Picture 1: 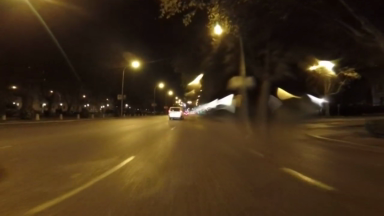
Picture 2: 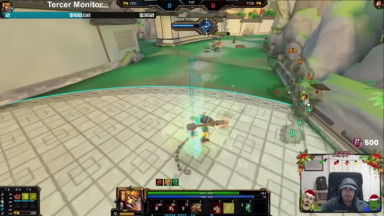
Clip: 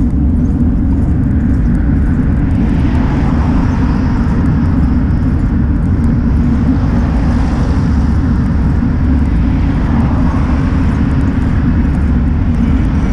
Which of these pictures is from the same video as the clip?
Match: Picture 1